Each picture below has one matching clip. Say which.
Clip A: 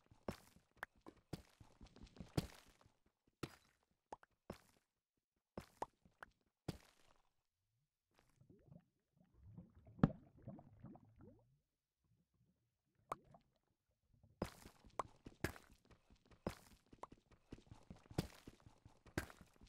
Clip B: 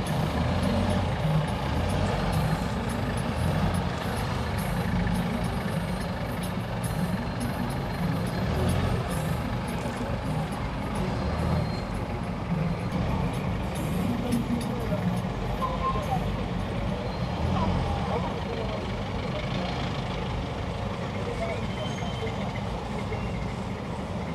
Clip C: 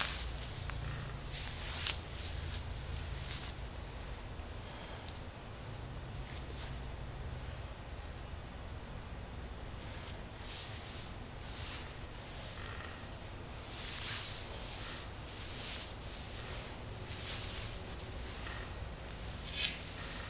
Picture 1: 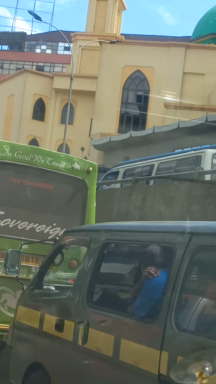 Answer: B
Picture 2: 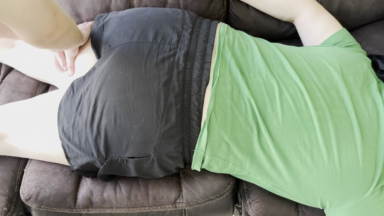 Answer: C